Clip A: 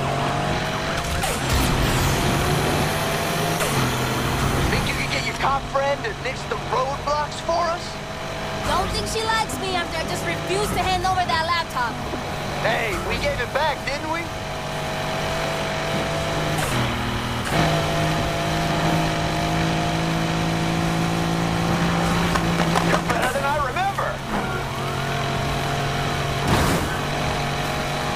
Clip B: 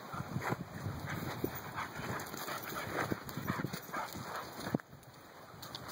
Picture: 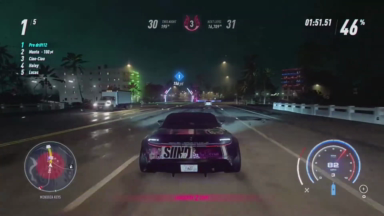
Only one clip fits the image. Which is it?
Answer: A